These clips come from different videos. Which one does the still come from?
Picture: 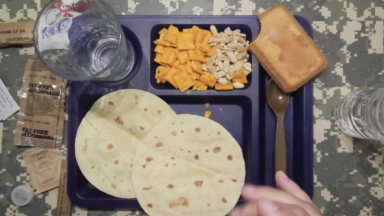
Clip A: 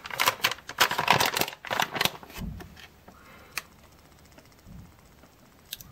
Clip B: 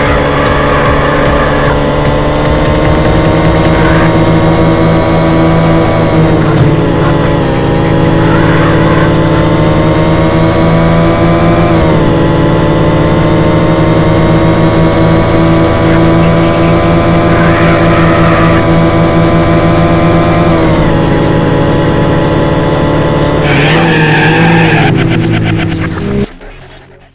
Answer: A